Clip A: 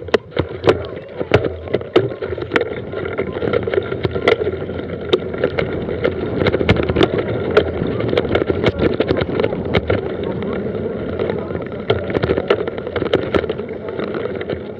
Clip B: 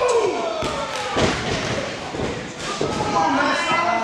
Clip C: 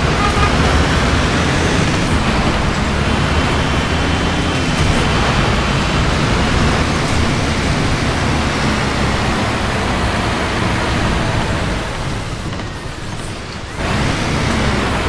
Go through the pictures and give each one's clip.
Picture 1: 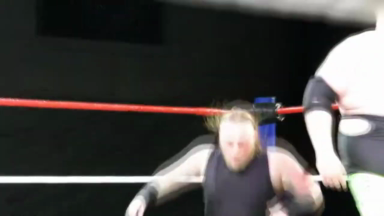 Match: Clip B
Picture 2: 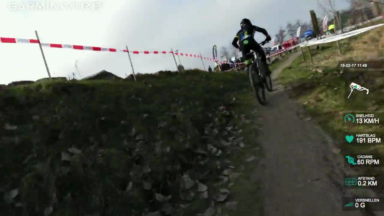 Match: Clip A